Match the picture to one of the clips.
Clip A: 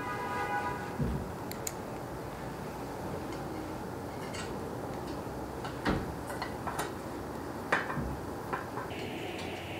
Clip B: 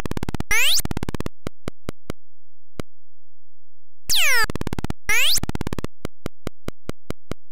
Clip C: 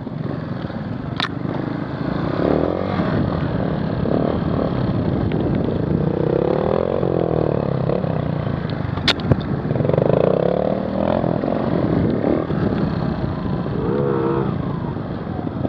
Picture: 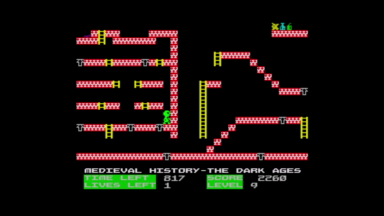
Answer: B